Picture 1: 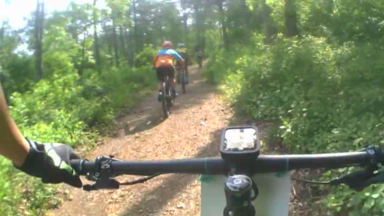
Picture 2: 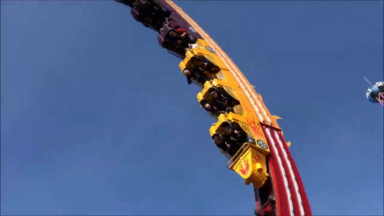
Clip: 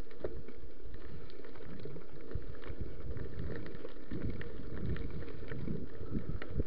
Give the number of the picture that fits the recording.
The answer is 1